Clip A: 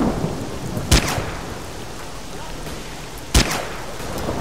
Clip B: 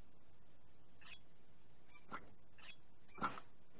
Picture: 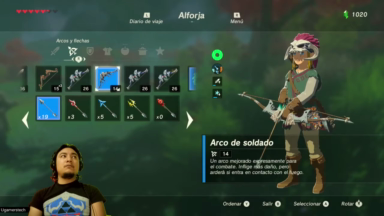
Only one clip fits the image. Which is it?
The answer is B